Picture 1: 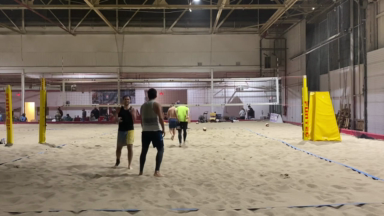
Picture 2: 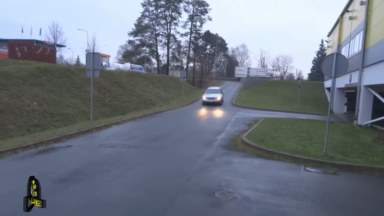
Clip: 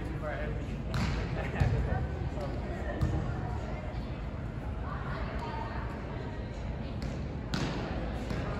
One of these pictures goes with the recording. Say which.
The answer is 1